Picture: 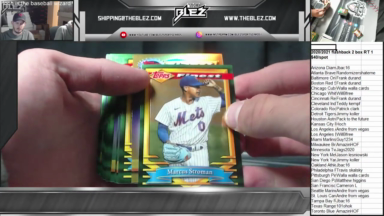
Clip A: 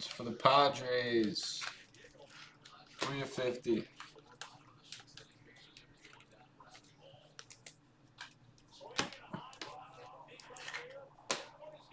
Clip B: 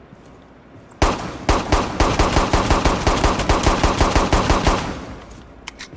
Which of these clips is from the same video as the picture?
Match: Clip A